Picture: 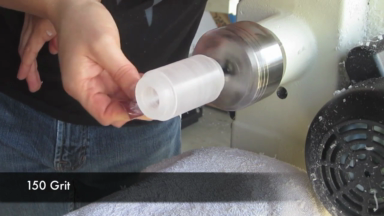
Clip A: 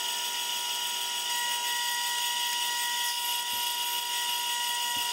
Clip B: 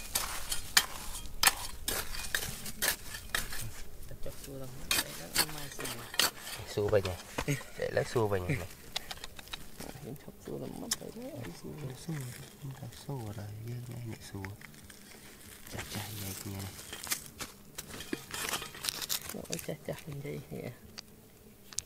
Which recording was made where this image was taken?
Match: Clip A